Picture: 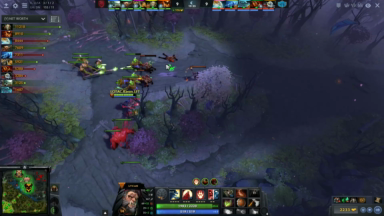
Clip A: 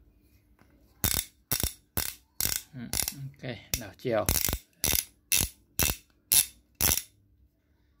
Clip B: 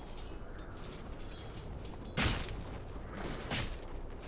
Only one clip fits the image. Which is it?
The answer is B